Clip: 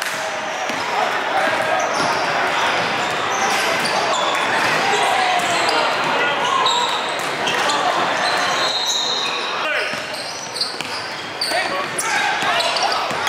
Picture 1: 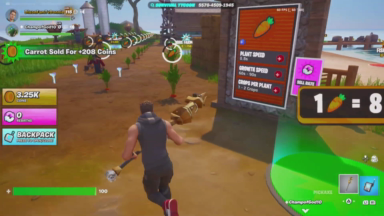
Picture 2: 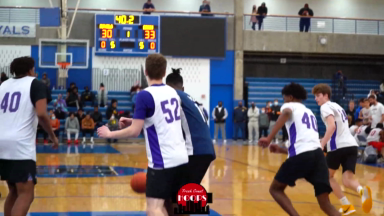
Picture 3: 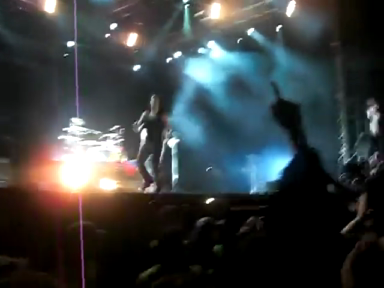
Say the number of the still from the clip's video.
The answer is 2